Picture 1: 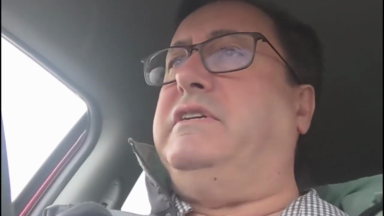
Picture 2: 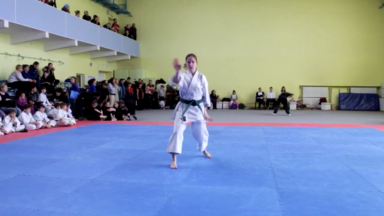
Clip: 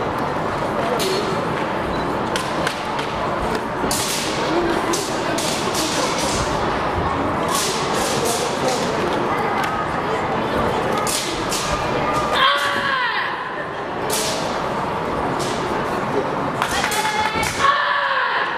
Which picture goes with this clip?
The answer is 2